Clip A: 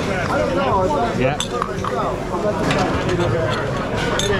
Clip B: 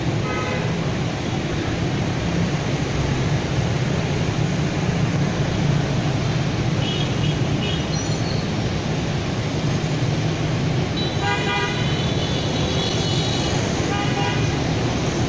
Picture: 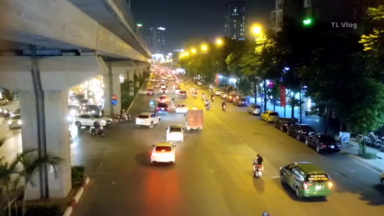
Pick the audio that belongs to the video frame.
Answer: B